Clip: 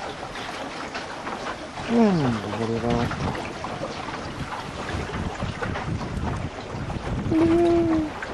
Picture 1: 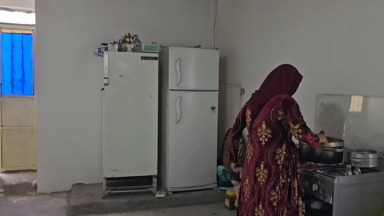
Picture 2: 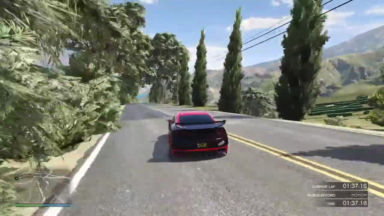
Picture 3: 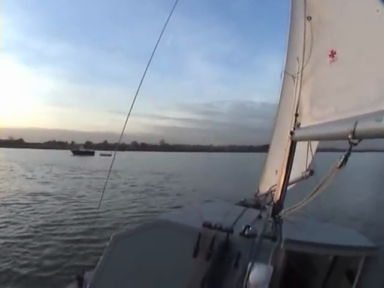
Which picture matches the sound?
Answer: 3